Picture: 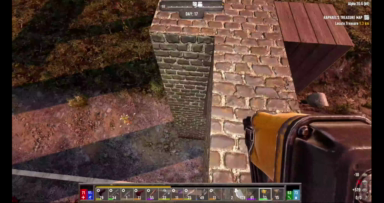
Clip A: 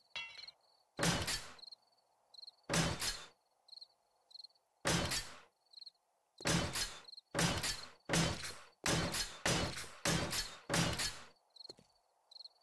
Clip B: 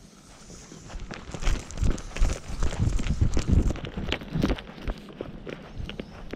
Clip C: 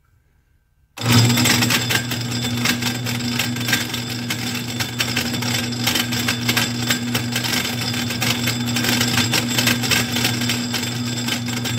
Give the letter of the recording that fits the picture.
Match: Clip A